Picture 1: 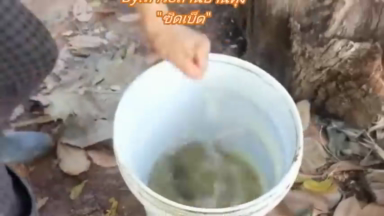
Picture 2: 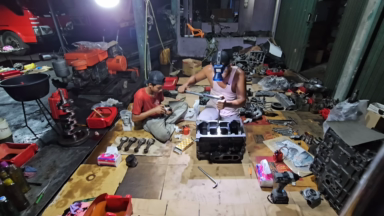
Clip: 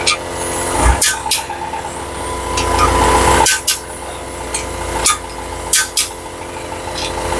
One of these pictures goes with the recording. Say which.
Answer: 2